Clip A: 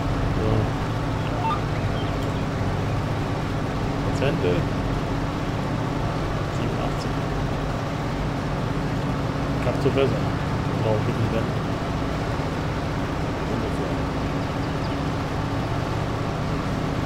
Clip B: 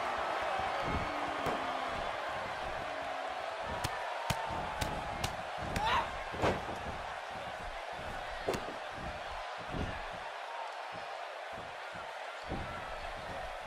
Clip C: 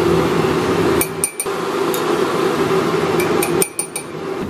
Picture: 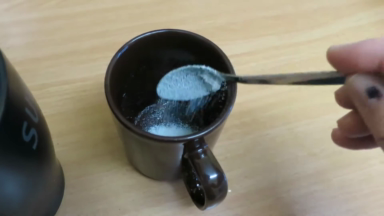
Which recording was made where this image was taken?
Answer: C